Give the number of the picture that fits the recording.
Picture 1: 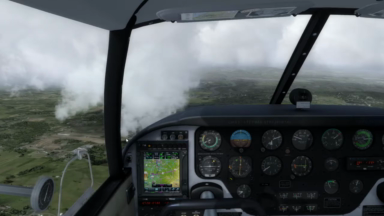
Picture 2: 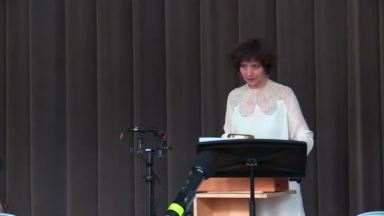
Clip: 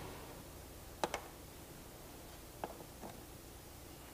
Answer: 2